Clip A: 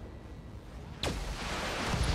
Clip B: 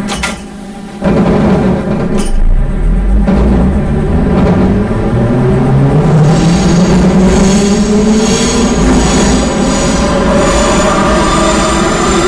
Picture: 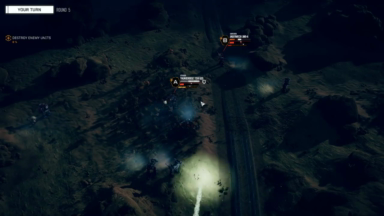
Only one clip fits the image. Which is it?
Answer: A